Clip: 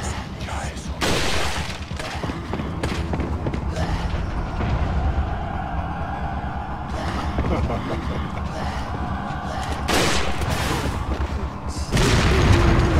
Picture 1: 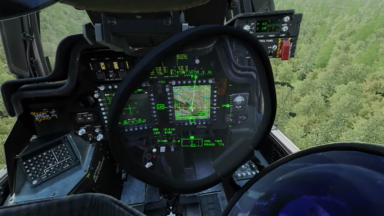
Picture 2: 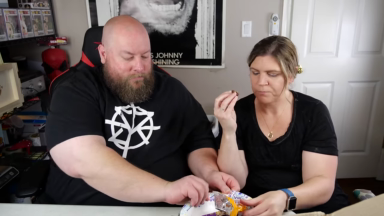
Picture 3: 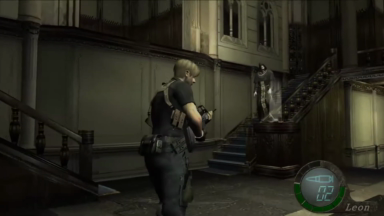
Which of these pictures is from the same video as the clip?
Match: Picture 3